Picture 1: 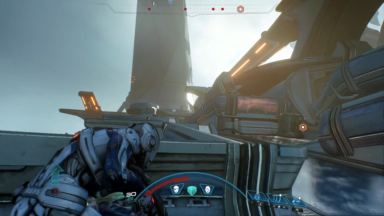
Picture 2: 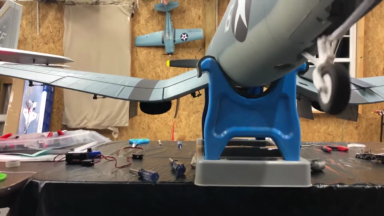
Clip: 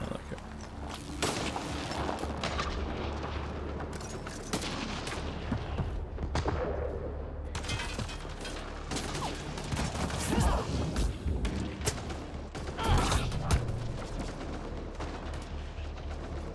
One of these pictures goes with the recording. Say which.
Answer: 1